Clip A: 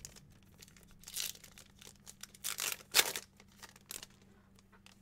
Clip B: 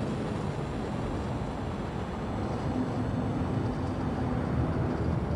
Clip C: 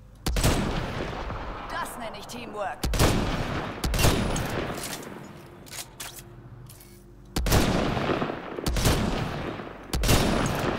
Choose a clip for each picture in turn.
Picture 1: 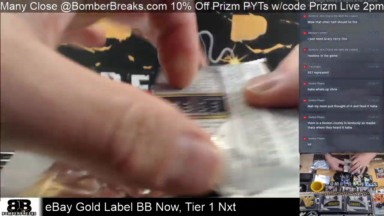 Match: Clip A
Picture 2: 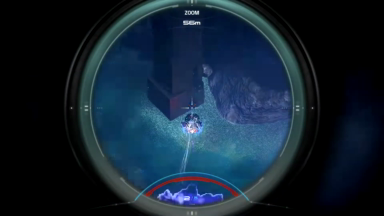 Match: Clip C